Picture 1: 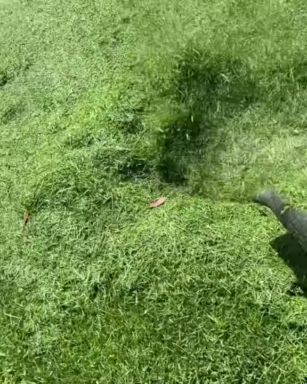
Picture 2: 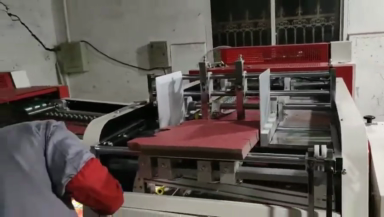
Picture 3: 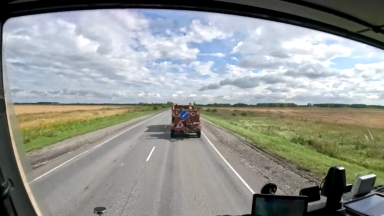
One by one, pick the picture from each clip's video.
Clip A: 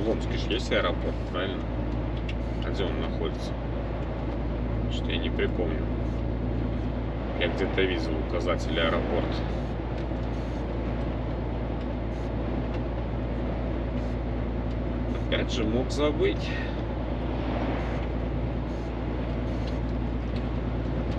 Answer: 3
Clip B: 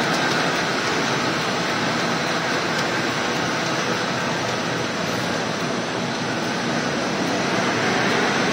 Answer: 2